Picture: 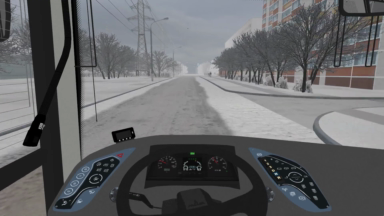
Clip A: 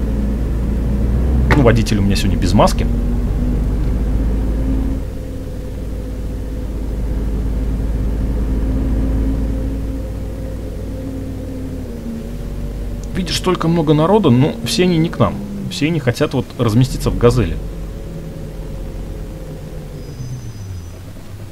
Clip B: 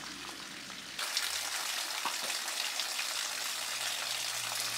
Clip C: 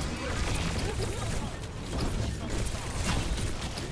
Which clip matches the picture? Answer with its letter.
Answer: A